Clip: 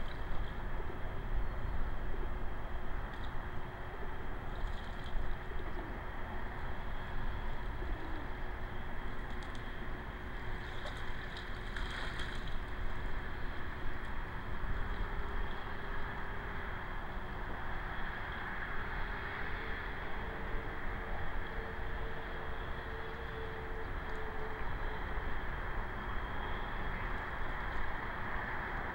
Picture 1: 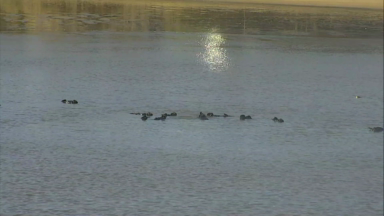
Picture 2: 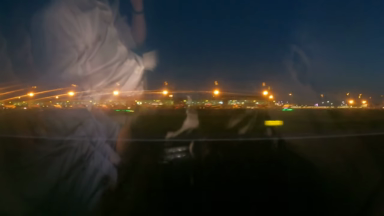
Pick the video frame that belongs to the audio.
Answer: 1